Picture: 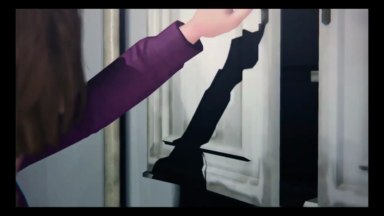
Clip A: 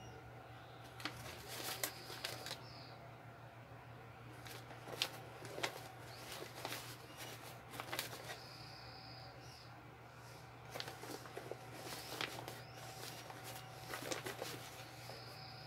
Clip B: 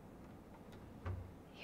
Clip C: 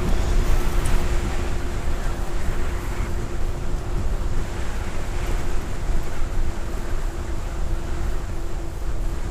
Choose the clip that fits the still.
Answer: B